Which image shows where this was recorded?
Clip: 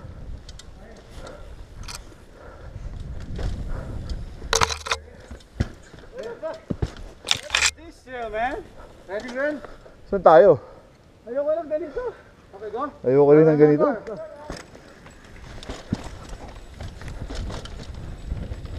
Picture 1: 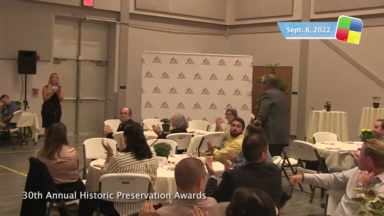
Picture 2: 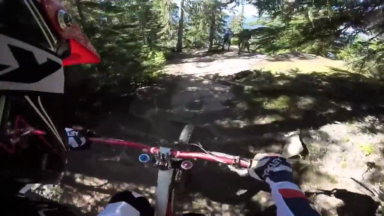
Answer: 2